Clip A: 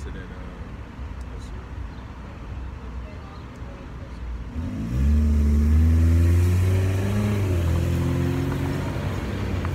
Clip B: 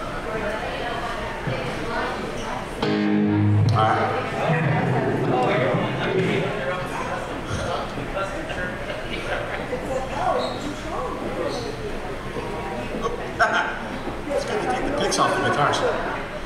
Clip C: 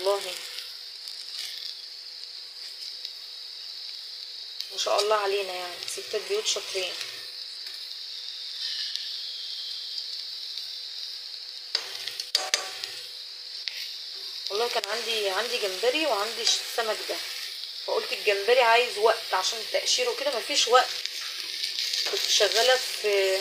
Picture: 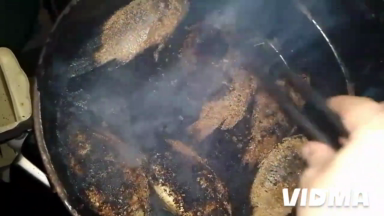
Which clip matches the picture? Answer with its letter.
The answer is C